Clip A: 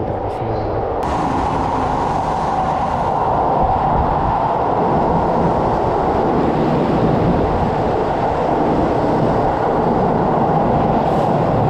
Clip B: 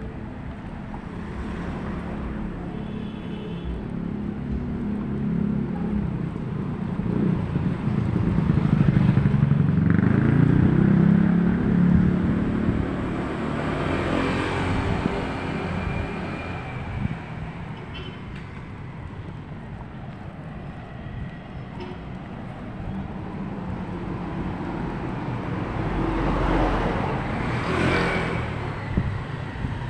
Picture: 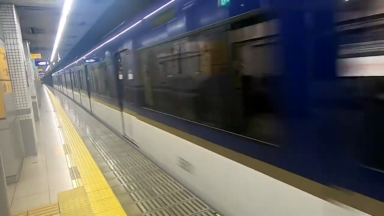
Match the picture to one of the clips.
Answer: A